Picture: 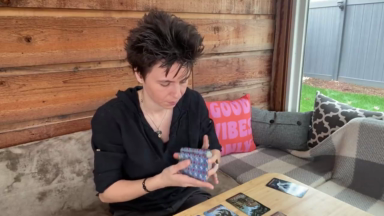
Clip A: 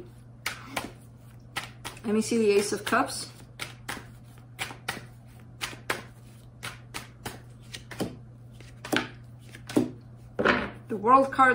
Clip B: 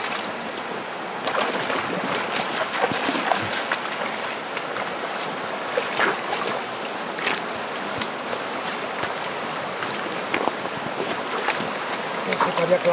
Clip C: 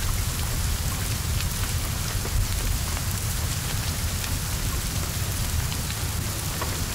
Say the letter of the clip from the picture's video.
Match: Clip A